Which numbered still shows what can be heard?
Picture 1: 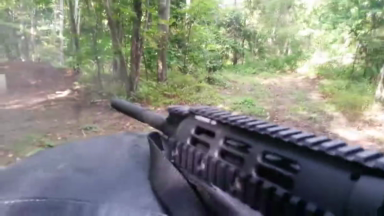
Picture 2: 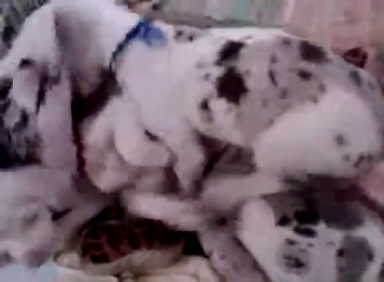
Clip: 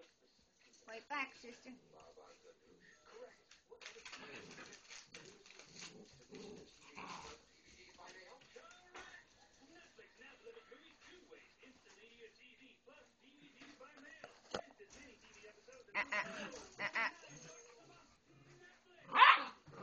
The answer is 2